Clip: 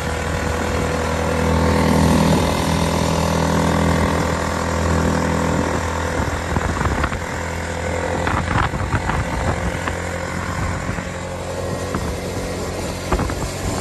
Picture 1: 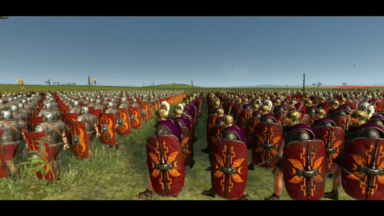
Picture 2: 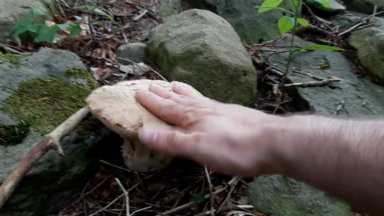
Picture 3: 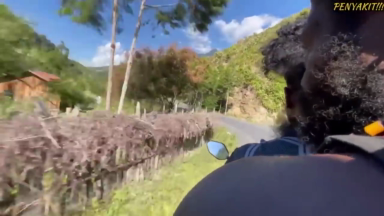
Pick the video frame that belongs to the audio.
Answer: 3